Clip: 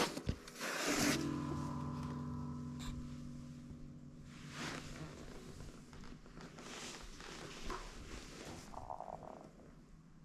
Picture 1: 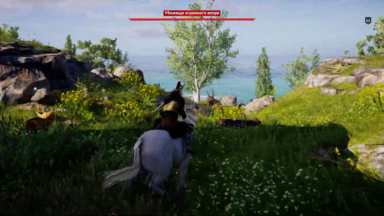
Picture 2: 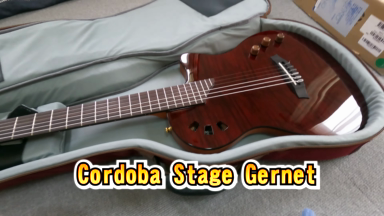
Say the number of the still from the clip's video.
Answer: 2